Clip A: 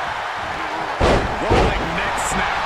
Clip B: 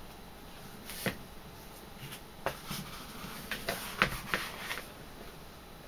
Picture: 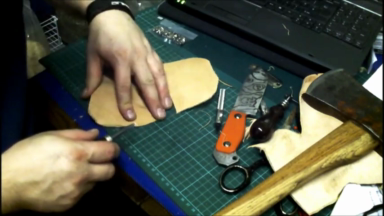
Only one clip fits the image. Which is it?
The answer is B